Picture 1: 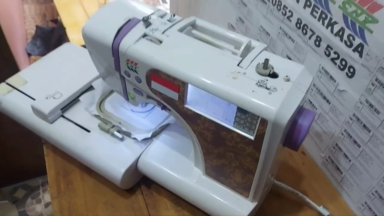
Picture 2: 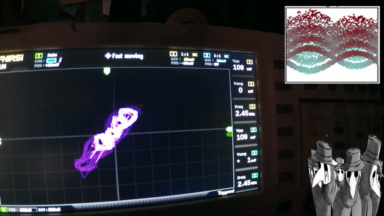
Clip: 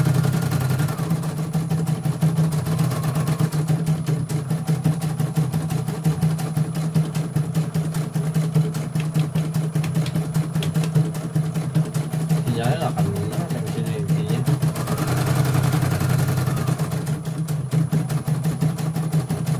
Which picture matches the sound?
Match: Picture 1